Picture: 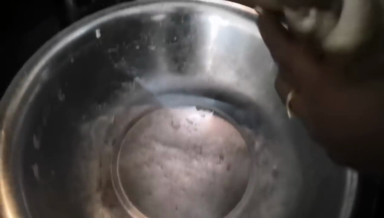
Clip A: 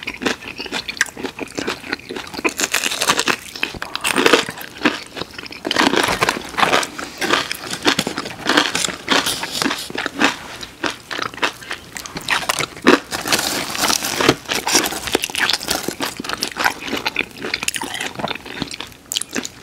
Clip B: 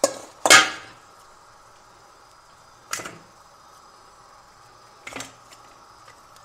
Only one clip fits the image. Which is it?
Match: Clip B